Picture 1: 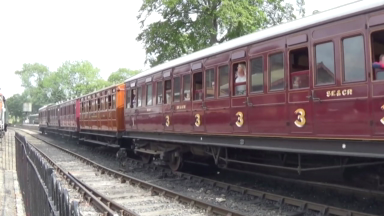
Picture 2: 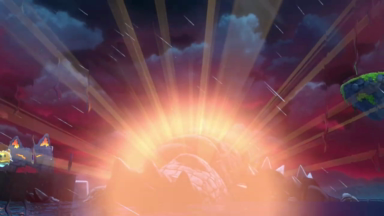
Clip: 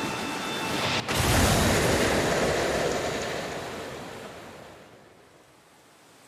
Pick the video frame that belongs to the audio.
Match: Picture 2